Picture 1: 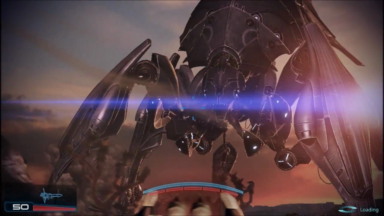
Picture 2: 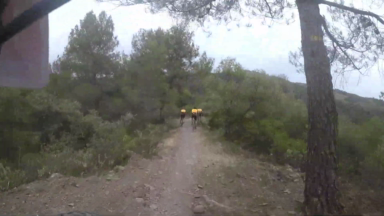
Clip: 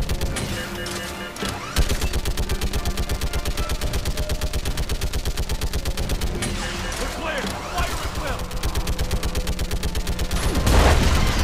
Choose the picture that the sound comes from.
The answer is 1